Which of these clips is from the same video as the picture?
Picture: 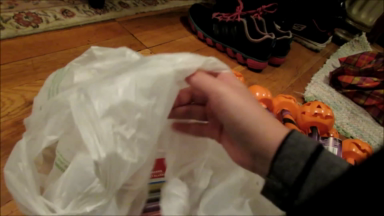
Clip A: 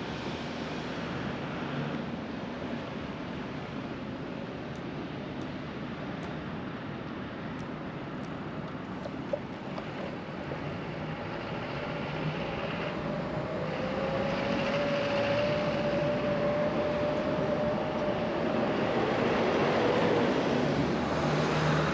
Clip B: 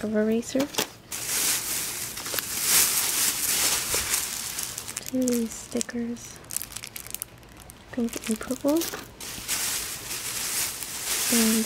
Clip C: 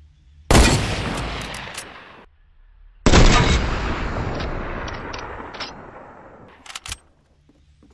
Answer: B